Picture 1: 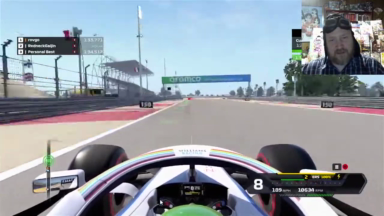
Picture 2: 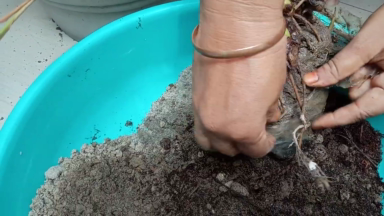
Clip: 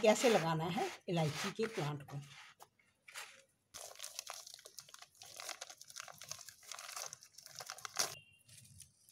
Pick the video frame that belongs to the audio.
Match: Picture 2